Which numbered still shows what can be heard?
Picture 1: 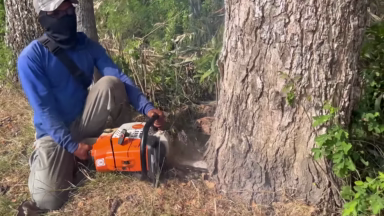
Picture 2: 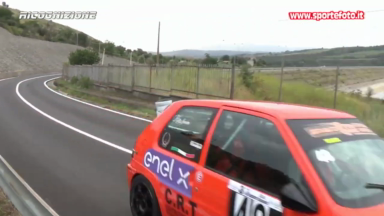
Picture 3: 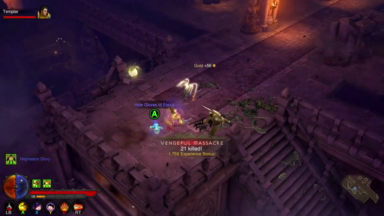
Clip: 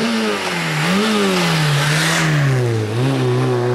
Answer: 2